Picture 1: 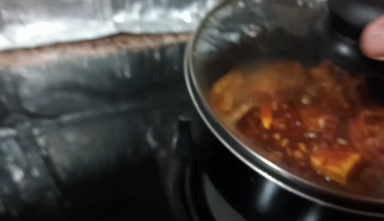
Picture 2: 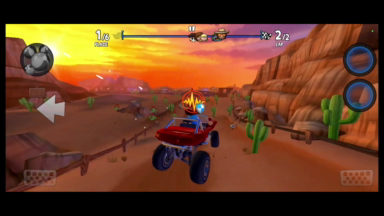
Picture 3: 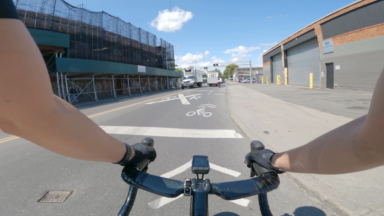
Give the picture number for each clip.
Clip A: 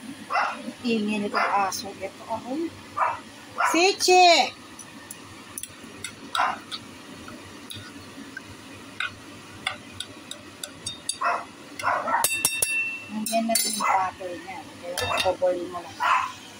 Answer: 1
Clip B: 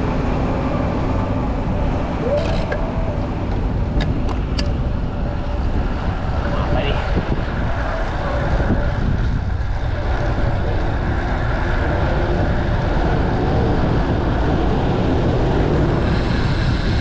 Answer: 3